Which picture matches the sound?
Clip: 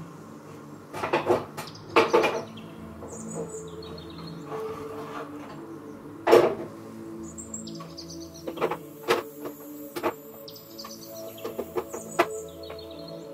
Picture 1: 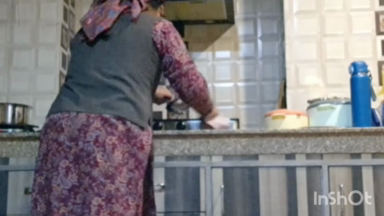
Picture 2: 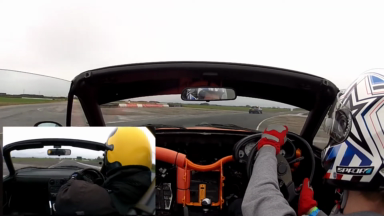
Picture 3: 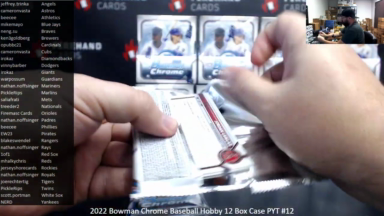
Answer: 1